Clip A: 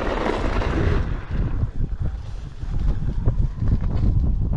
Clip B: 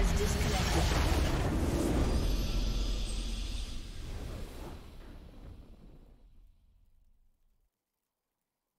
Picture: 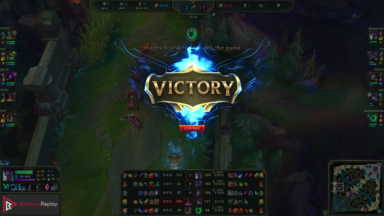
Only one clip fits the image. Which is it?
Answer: B